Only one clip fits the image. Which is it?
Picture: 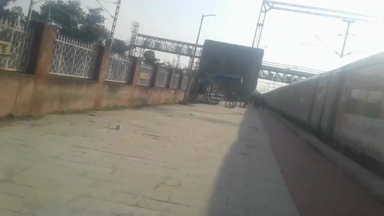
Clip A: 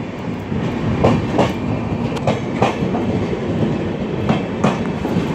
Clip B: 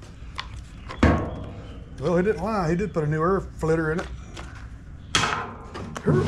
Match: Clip A